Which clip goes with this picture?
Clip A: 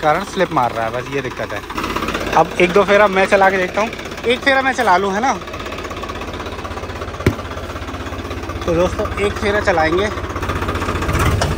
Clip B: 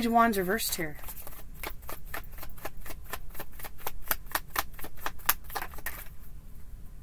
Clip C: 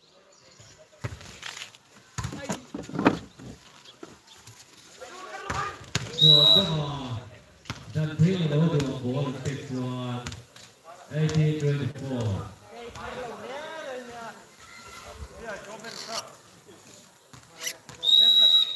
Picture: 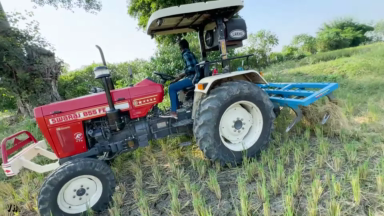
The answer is A